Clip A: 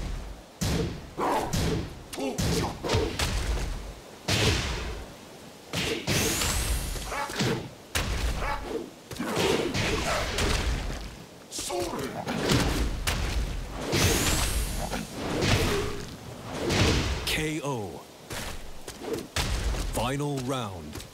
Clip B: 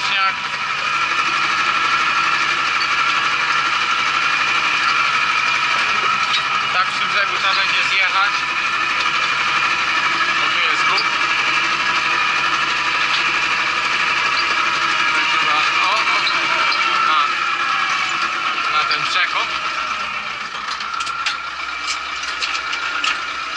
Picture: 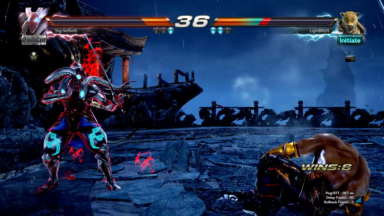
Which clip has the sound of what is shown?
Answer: A